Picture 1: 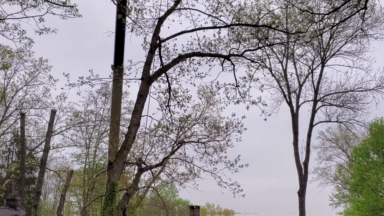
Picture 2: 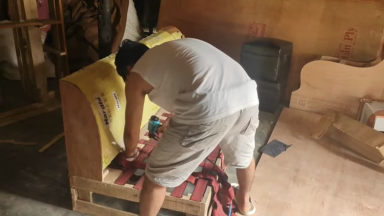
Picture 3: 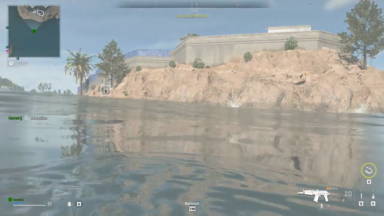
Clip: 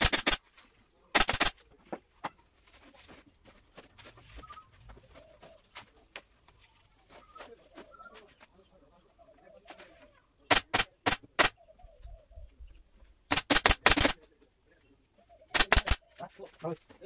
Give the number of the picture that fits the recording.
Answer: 2